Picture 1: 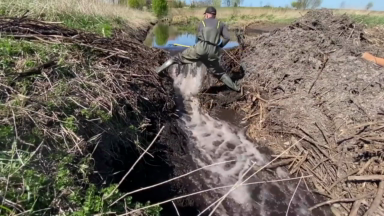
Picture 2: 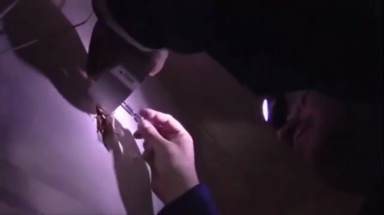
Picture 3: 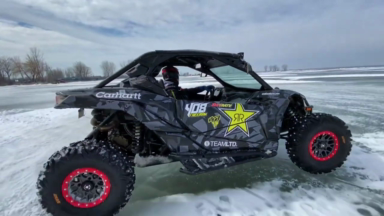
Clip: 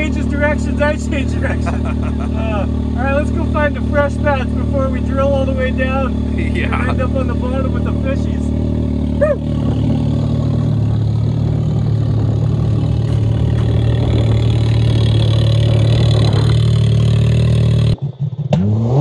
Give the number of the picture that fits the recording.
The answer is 3